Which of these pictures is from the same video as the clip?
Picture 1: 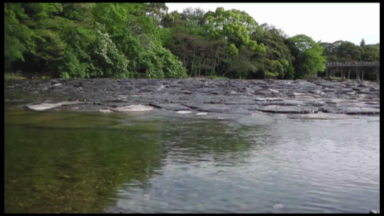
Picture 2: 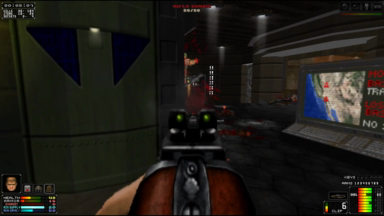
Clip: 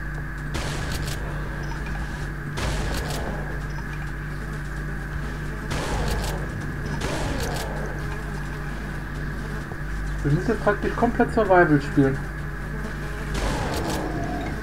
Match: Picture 2